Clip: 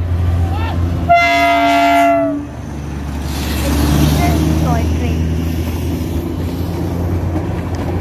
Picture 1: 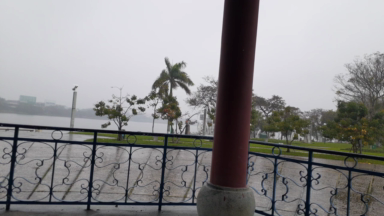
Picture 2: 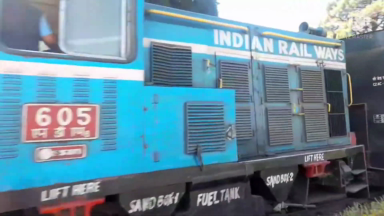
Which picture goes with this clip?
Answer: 2